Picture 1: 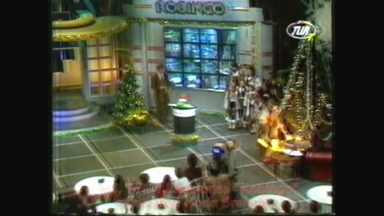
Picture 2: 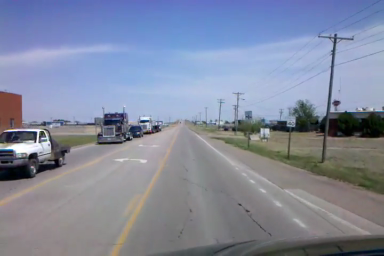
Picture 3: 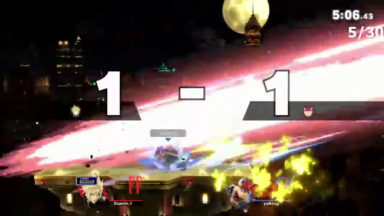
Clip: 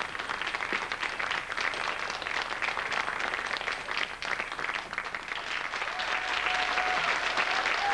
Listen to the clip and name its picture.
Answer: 1